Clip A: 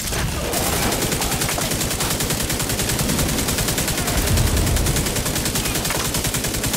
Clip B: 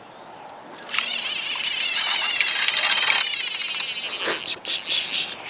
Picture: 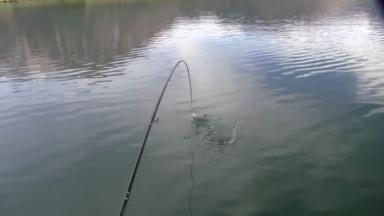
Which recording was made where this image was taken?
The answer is B